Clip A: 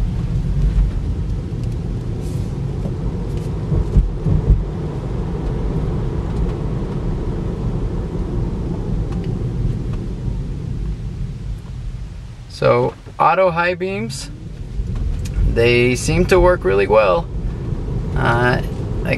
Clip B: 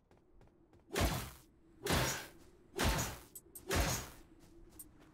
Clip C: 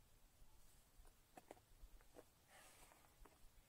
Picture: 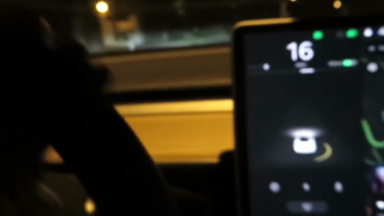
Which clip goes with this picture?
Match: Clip A